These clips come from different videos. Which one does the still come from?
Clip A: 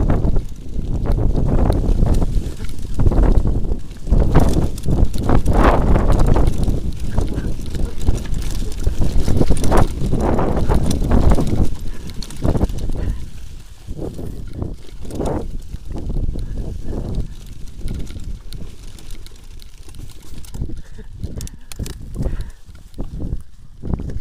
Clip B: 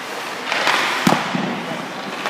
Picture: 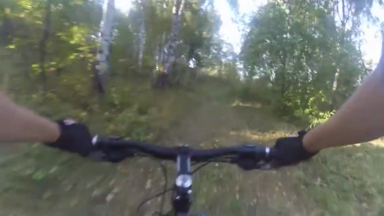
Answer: A